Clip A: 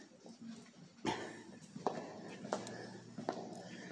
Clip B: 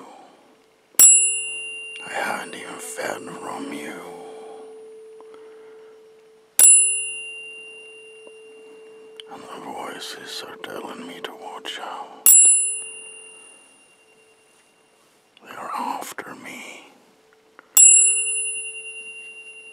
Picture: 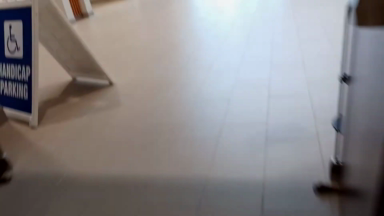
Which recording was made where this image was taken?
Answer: A